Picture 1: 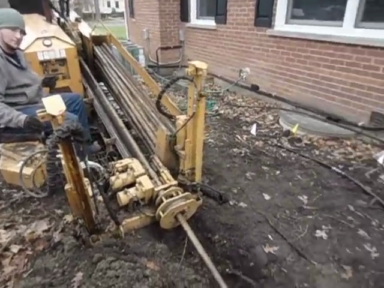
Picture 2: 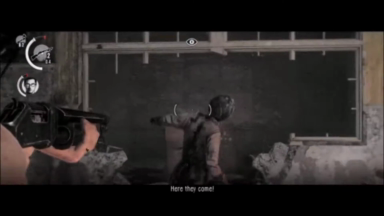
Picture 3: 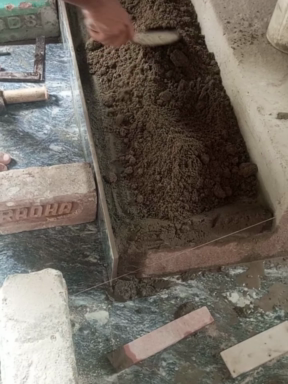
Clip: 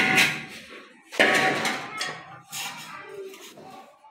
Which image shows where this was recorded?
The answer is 3